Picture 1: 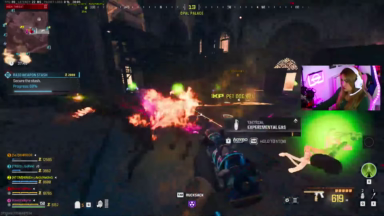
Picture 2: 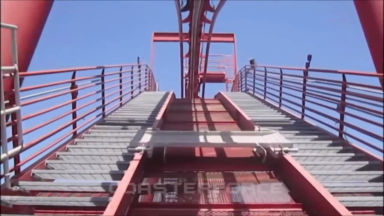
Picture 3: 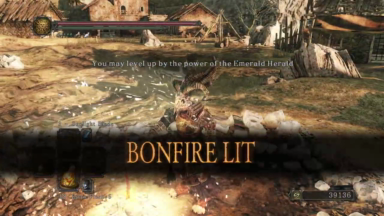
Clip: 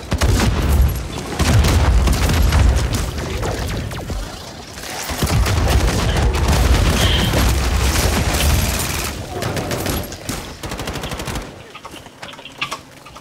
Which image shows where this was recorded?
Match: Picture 1